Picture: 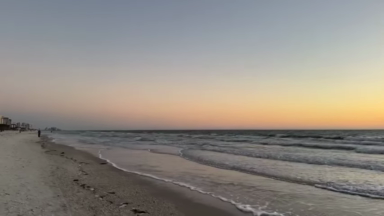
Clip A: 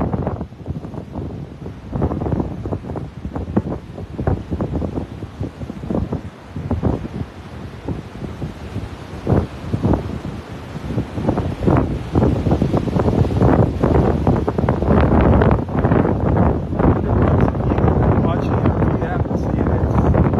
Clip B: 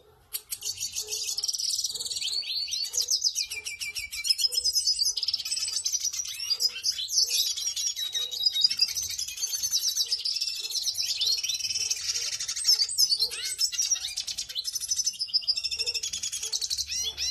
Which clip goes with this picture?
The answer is A